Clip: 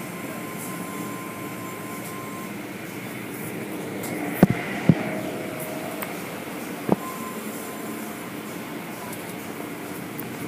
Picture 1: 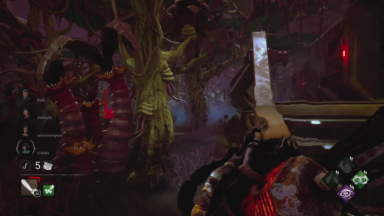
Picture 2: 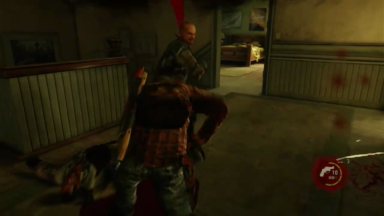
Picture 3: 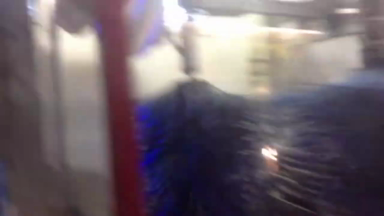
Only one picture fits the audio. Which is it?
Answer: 3